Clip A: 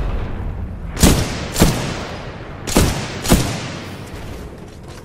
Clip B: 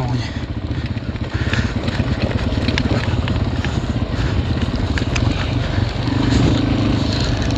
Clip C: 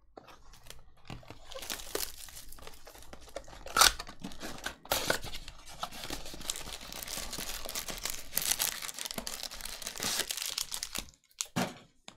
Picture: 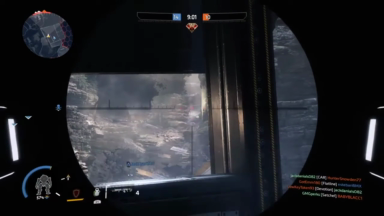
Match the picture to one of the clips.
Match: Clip A